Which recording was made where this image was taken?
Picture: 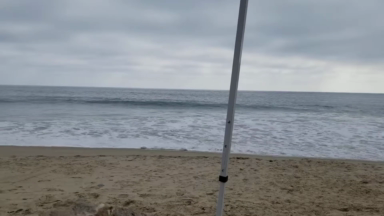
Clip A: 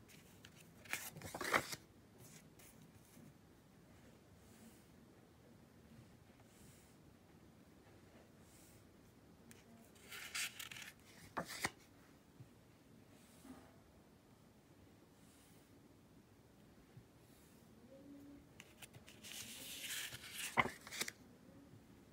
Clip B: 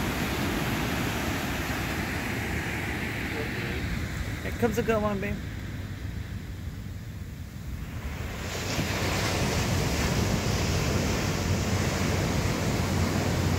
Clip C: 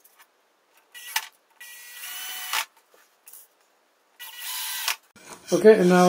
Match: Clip B